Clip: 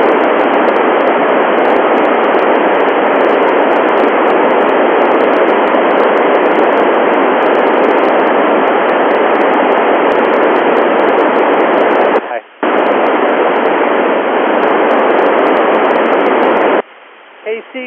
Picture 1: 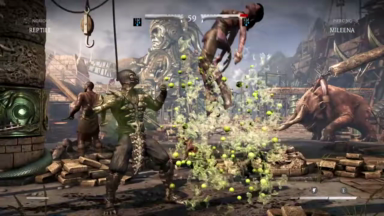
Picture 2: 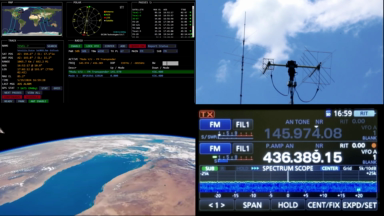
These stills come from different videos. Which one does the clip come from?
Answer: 2